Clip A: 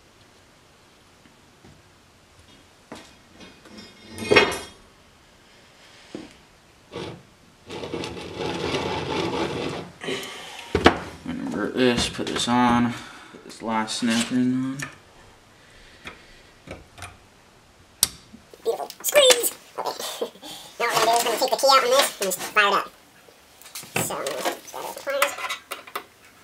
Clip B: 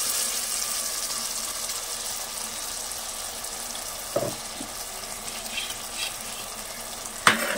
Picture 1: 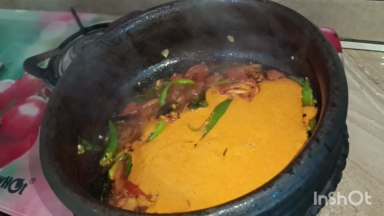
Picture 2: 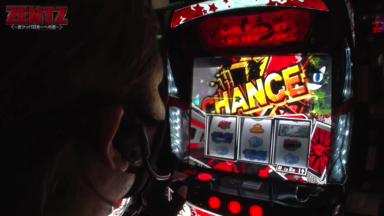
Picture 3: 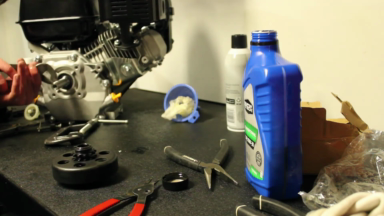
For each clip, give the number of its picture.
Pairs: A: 3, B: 1